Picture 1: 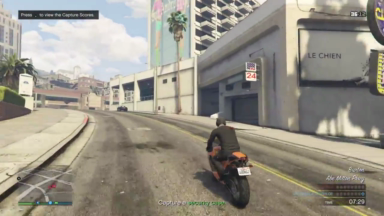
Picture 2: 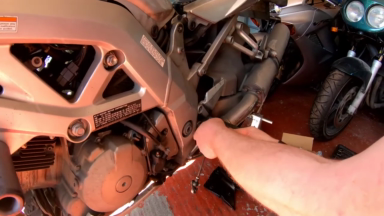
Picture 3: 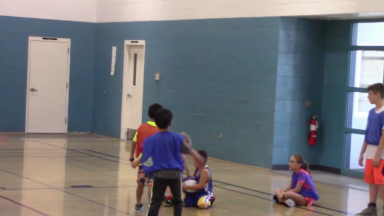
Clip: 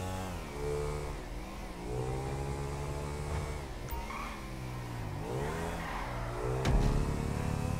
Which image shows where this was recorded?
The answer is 1